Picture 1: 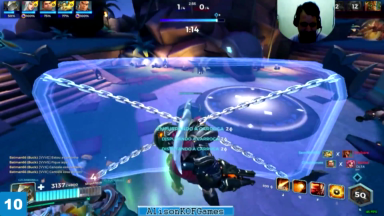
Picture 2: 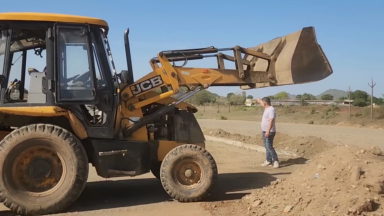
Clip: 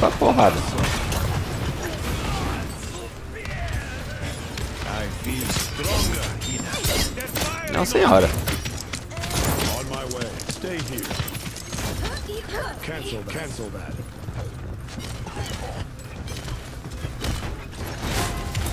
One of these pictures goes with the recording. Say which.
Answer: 1